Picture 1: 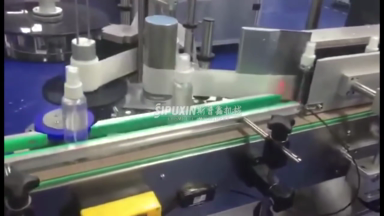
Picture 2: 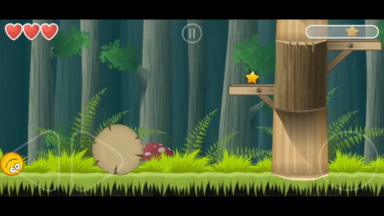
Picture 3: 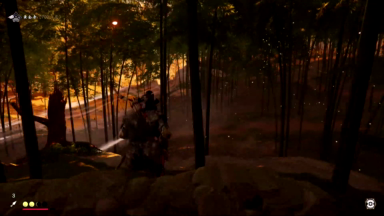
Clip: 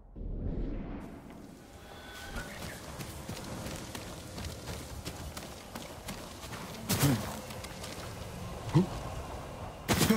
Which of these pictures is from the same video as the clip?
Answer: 3